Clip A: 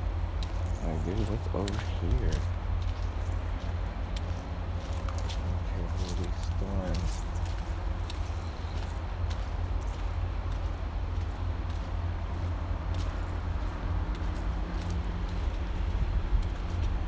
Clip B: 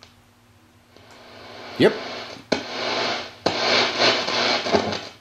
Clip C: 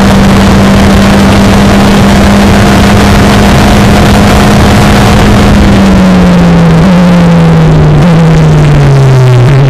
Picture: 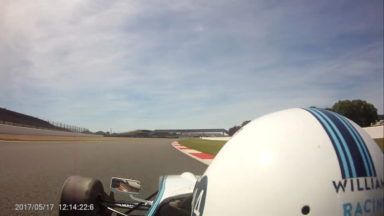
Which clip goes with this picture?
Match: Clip C